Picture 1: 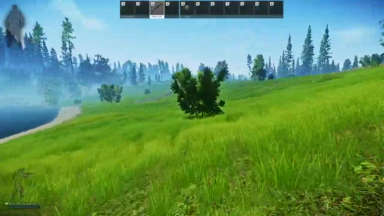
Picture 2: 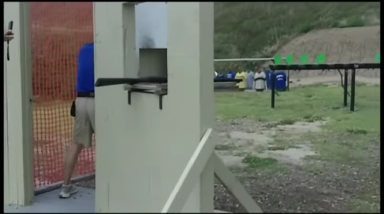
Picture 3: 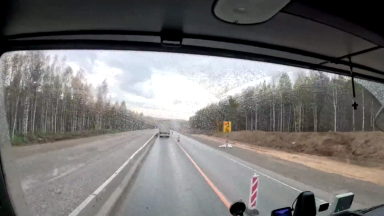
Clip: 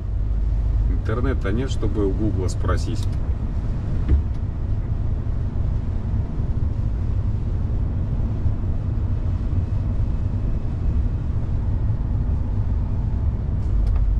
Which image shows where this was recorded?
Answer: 3